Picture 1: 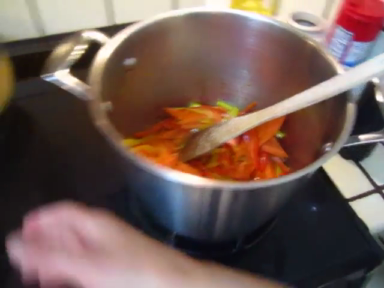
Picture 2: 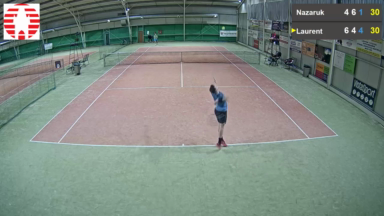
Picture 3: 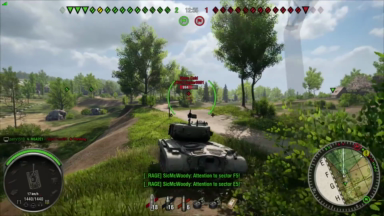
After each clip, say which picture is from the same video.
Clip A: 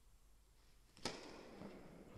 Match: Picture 2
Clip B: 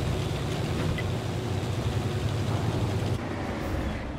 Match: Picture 3